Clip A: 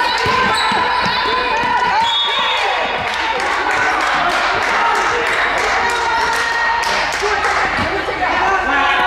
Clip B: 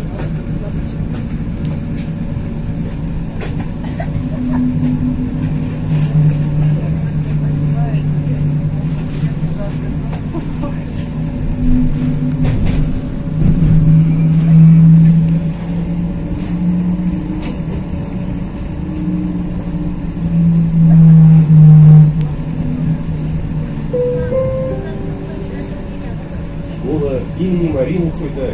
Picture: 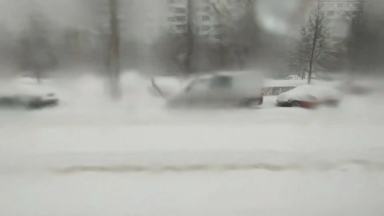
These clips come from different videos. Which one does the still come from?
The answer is B